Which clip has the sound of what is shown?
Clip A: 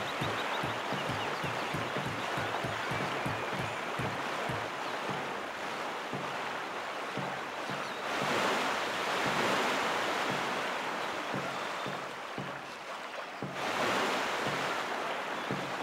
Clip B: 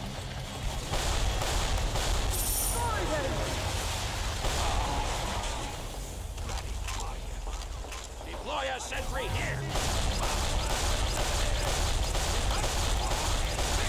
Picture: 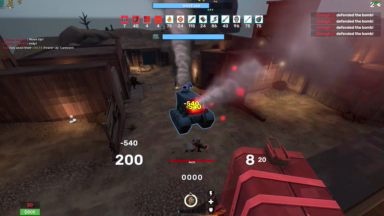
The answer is B